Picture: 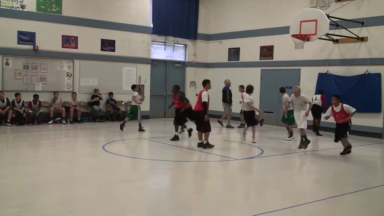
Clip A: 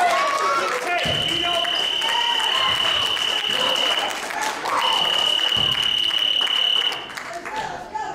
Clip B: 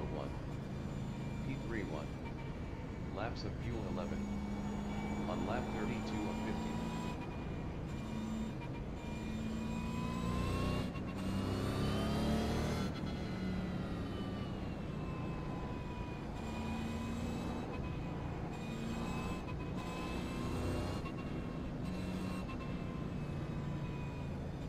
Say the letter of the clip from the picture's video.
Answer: A